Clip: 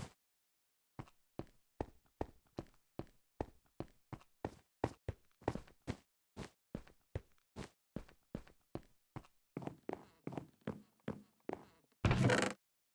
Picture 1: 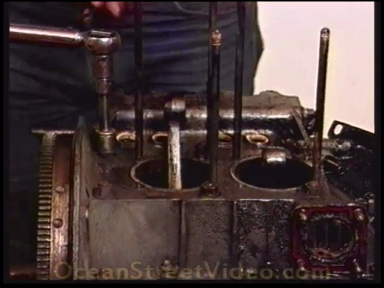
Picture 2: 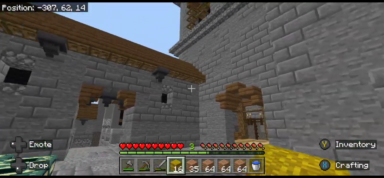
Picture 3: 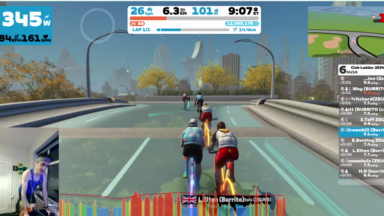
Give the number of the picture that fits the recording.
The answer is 2